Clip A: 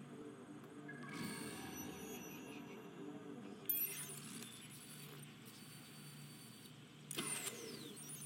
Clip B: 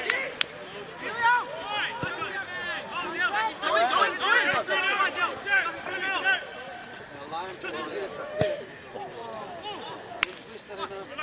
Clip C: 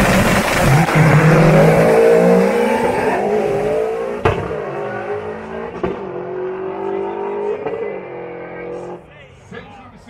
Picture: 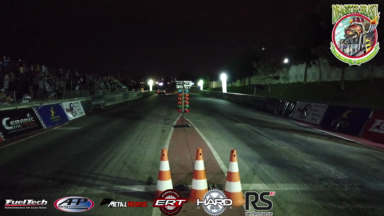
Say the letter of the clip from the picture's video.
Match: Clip C